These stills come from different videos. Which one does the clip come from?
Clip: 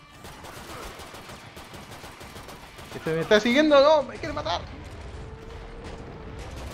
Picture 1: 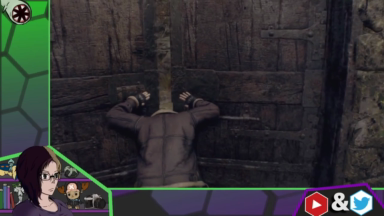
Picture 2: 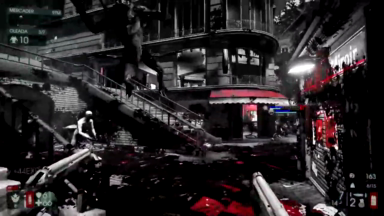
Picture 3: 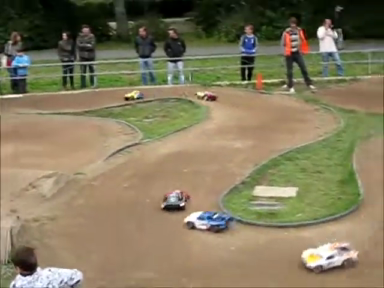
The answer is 2